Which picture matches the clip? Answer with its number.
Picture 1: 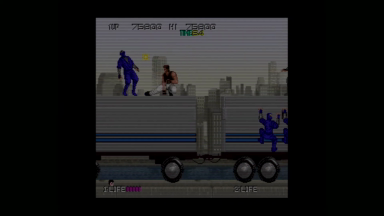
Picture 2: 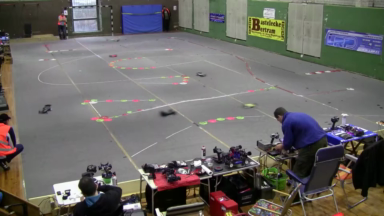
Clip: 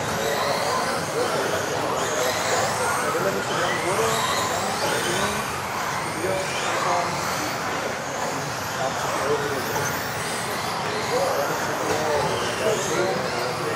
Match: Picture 2